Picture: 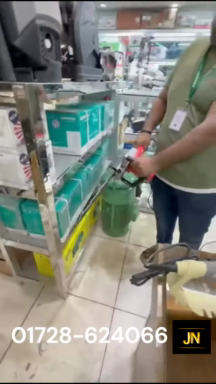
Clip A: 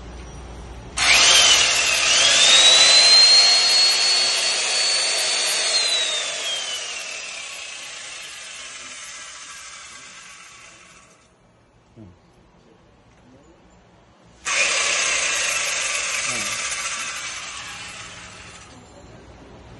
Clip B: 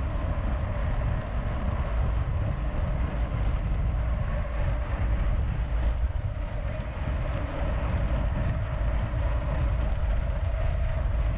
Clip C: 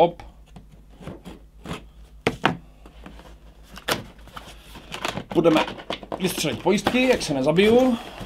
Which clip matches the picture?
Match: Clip A